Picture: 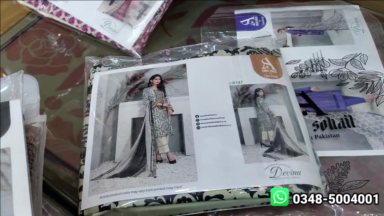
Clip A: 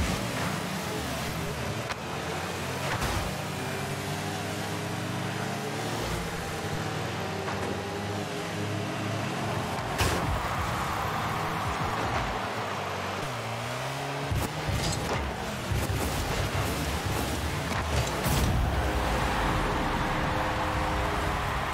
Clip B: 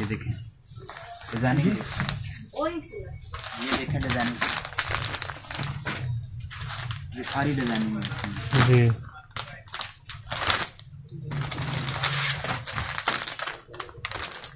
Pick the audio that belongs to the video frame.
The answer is B